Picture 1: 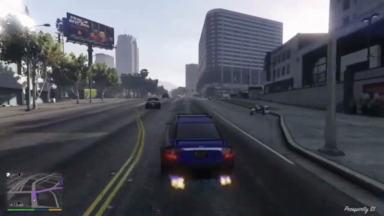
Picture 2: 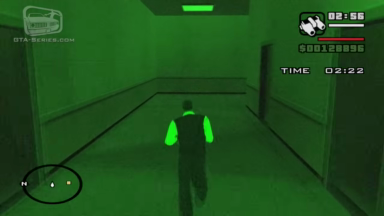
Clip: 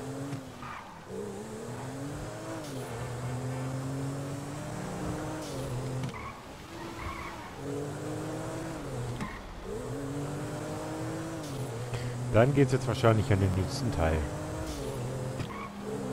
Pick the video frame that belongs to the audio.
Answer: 1